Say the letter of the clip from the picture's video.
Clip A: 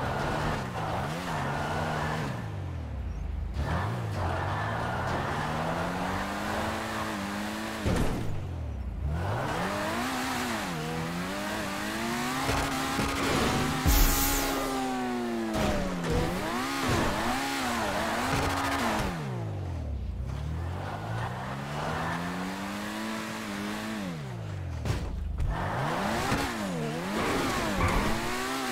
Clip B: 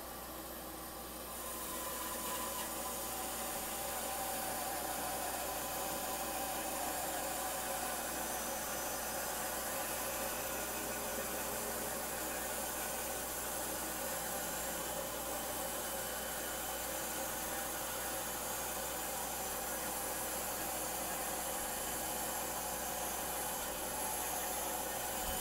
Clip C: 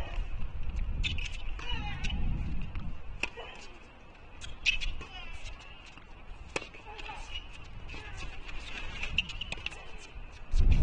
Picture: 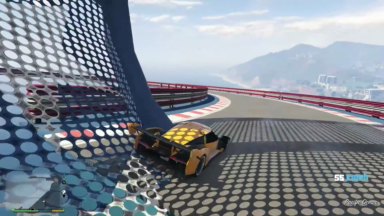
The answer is A